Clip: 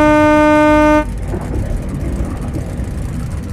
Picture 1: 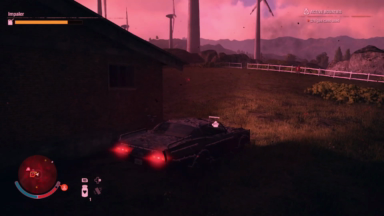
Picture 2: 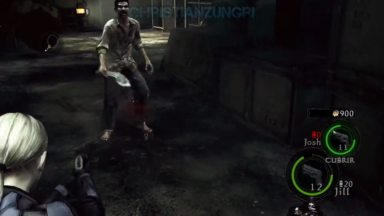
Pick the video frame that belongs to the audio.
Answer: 1